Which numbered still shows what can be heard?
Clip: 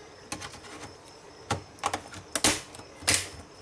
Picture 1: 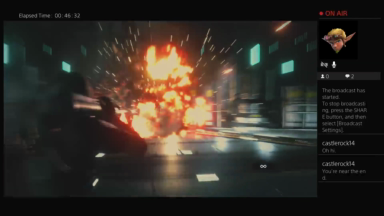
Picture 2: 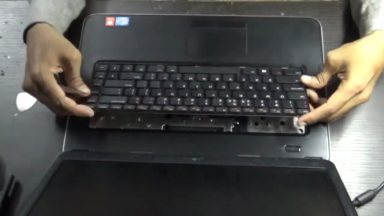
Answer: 2